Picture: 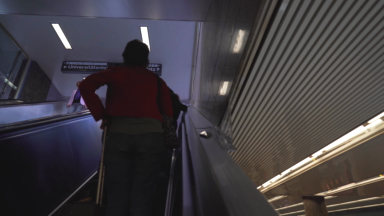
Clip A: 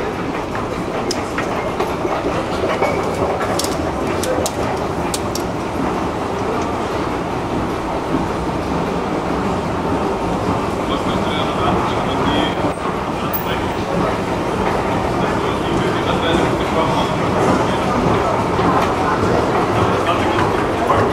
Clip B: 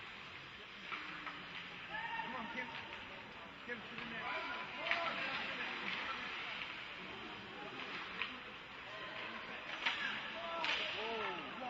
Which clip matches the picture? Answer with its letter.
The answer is A